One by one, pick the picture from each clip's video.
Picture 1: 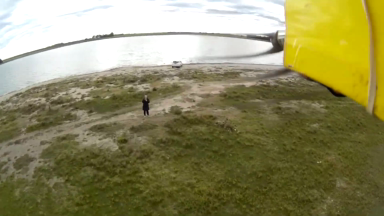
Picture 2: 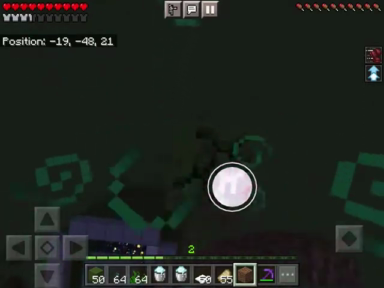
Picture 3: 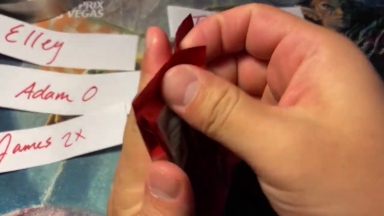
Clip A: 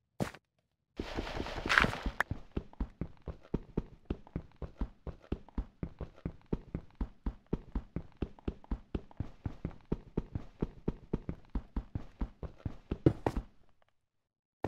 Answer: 2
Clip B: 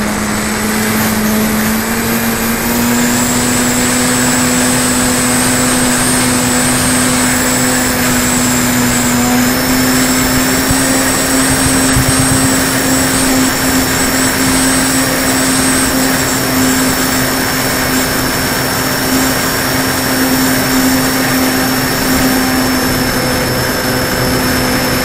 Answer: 1